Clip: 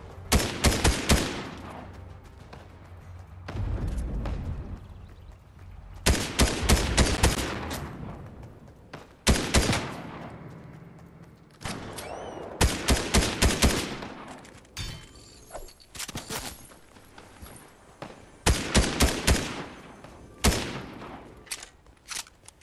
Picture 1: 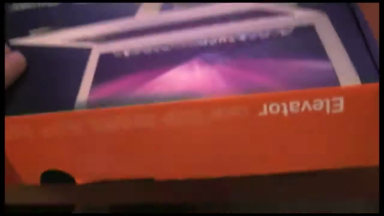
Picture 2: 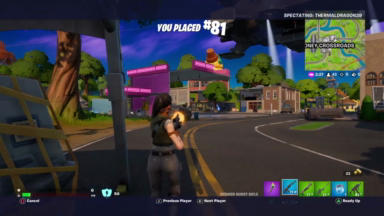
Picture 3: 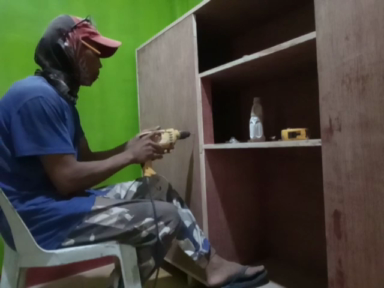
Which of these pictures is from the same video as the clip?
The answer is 2